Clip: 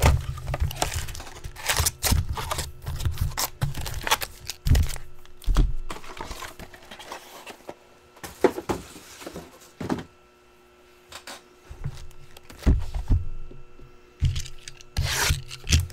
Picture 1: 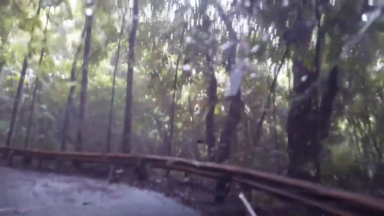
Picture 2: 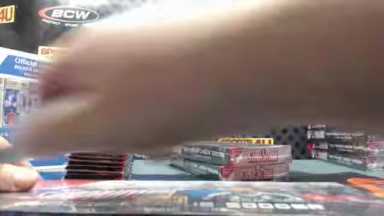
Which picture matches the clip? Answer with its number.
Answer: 2